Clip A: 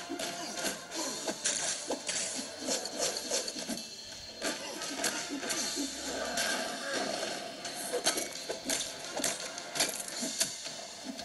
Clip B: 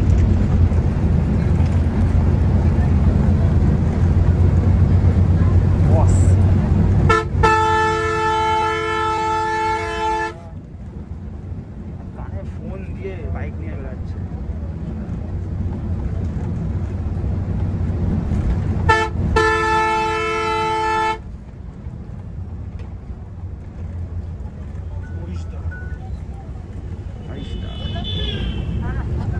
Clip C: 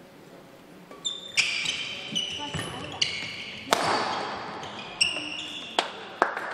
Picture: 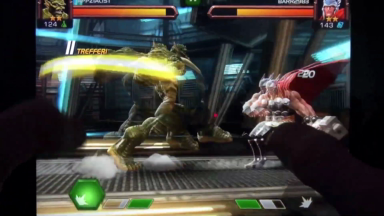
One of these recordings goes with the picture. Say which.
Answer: A